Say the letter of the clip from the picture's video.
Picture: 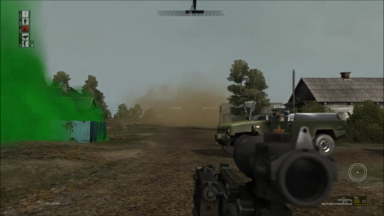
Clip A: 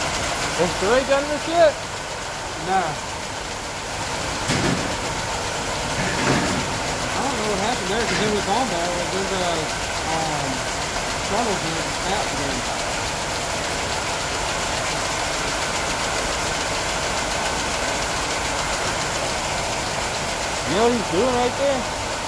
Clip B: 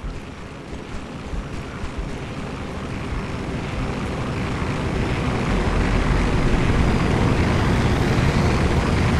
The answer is B